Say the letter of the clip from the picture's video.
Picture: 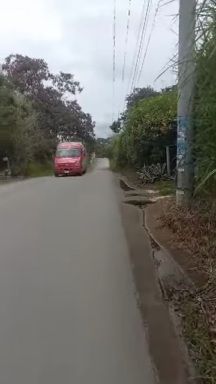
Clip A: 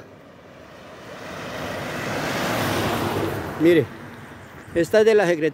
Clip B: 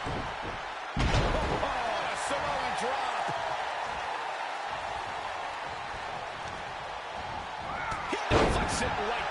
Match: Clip A